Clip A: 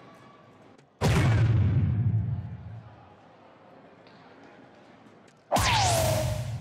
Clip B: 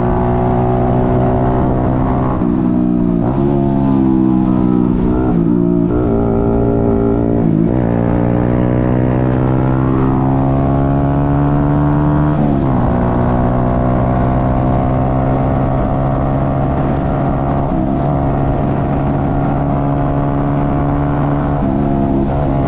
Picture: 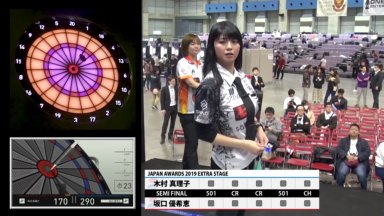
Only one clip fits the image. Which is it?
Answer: A